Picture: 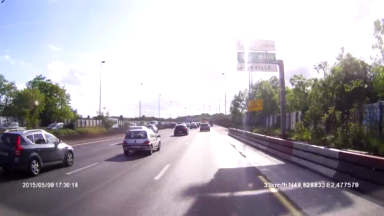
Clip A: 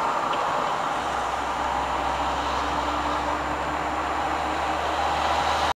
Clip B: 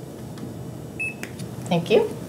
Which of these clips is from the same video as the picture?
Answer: A